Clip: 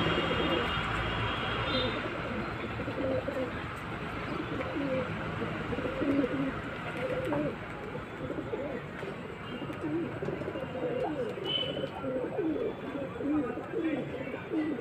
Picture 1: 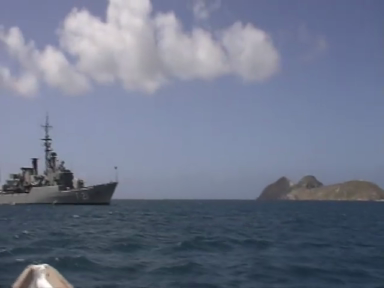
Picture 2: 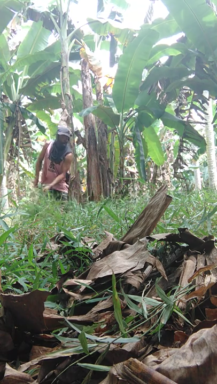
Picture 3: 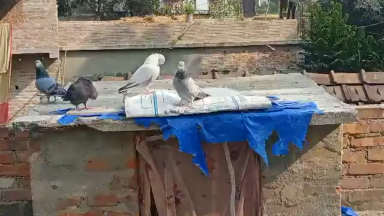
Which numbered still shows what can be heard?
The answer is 3